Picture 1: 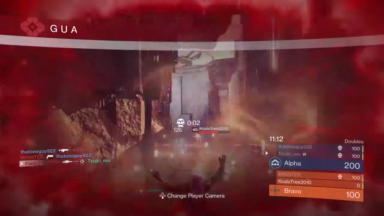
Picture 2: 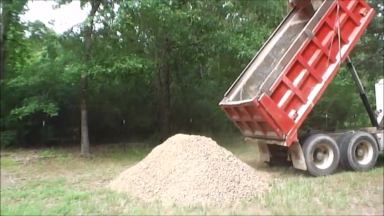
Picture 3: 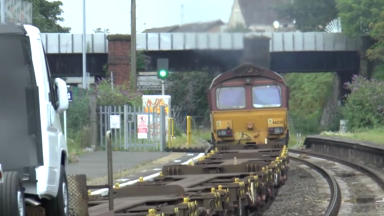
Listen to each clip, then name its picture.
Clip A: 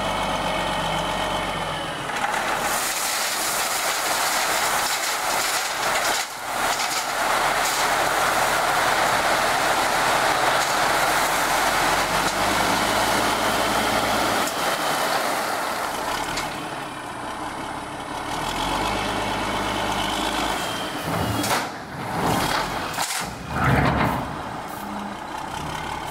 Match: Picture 2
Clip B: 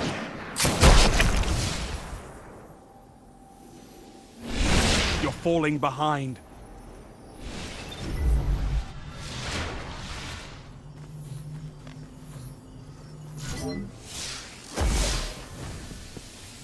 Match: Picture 1